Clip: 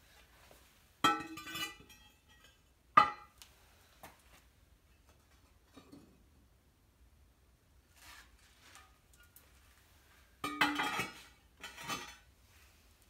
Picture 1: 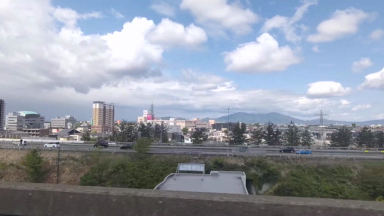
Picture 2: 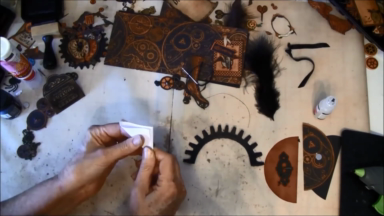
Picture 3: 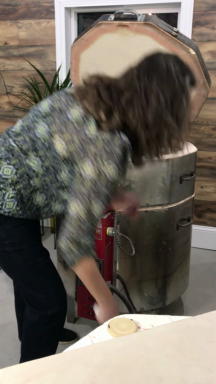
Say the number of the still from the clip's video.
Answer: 3